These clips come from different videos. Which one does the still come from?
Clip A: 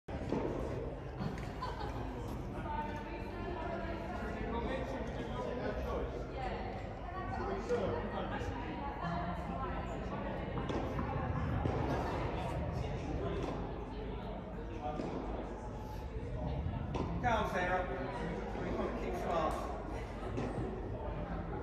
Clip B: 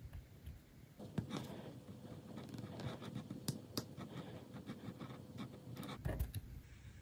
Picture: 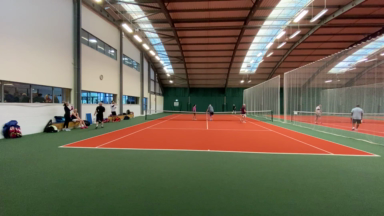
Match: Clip A